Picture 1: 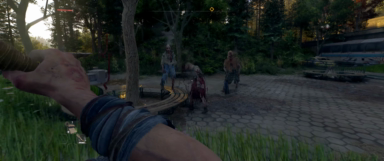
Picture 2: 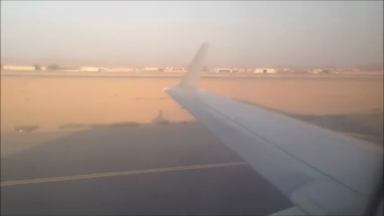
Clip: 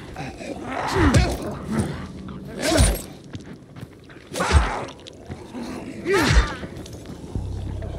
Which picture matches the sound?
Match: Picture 1